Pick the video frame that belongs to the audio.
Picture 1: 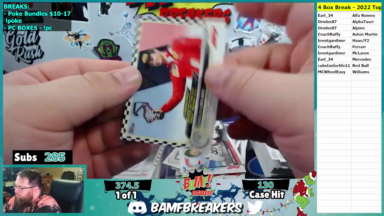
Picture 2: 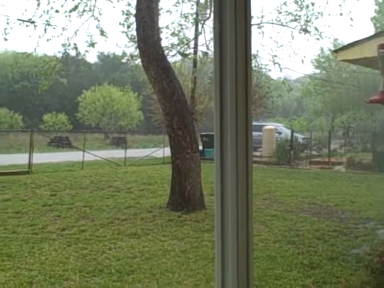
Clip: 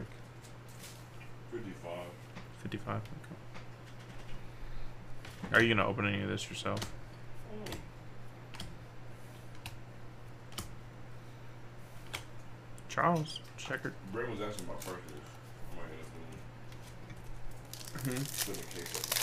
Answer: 1